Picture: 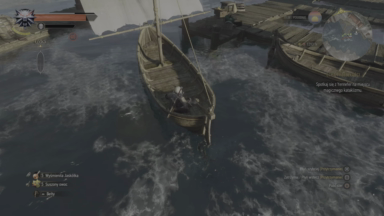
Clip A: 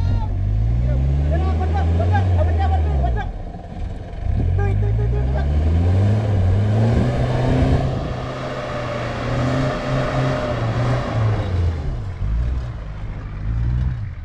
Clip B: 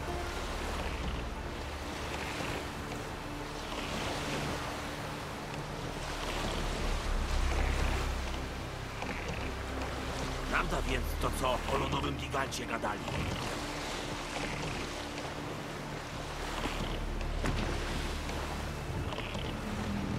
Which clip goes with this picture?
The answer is B